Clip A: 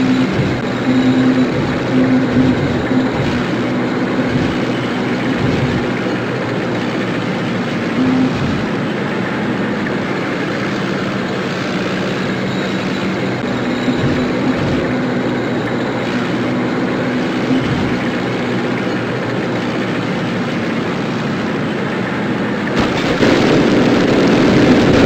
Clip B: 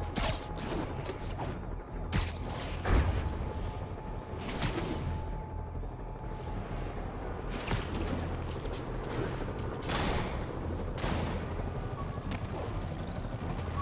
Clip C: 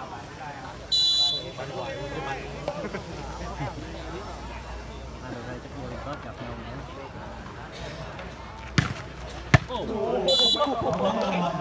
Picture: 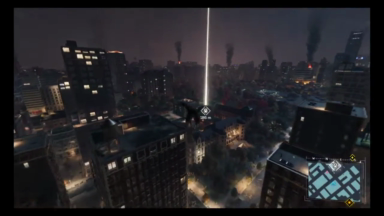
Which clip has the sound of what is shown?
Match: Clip B